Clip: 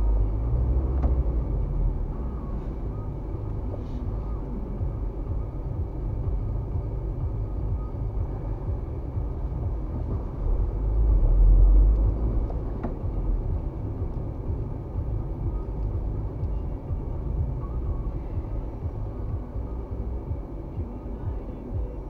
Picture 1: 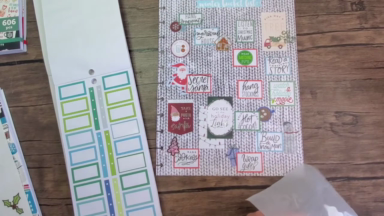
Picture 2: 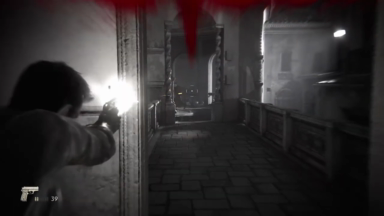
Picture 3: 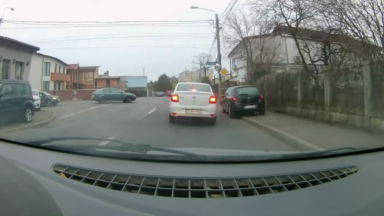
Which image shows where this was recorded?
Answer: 3